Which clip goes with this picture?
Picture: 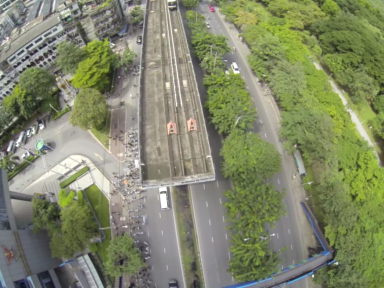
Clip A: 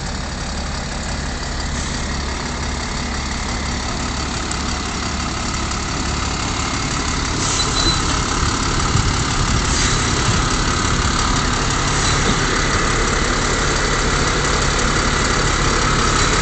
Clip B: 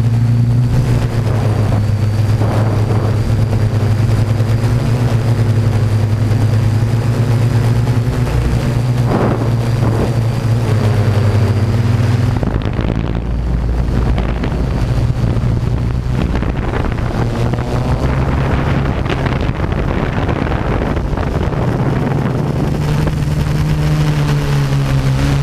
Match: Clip B